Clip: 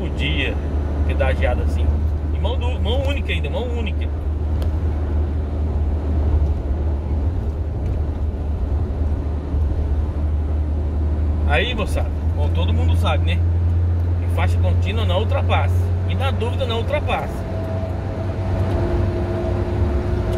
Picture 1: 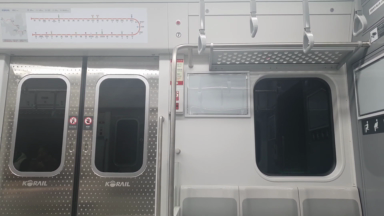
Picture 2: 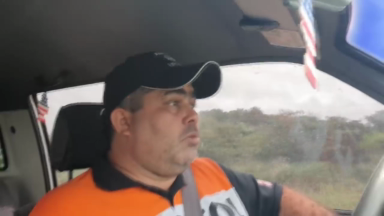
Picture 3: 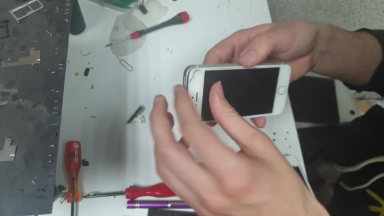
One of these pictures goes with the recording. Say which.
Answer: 2